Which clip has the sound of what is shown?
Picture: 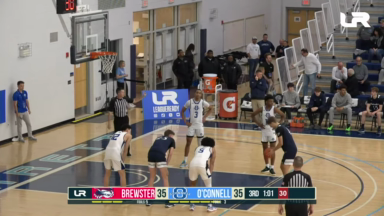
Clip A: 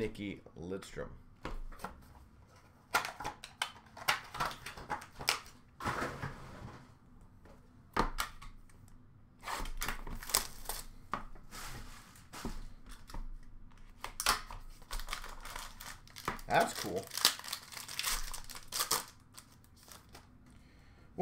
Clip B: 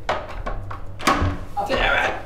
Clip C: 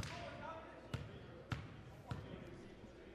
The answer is C